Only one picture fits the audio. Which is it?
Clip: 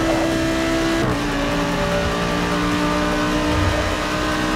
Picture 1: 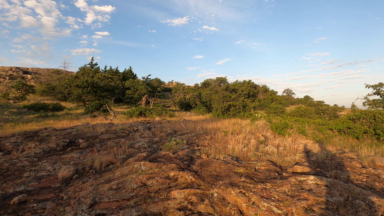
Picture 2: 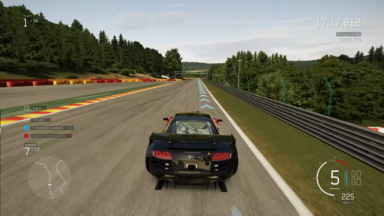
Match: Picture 2